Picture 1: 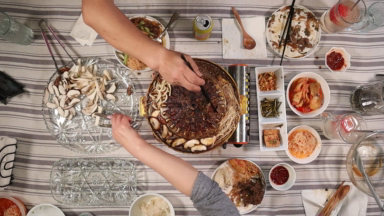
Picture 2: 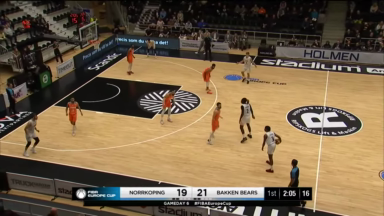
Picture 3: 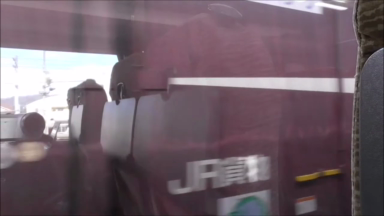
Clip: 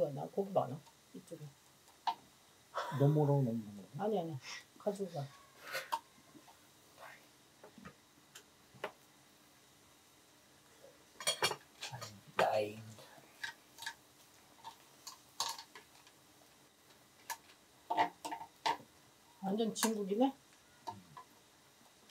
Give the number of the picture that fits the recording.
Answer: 1